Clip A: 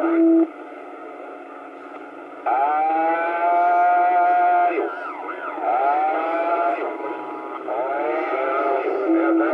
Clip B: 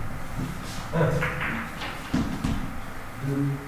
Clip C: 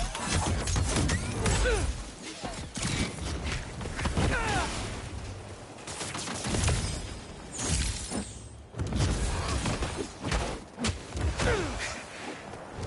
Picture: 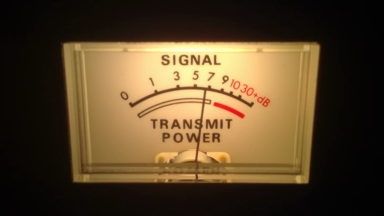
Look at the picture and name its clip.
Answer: A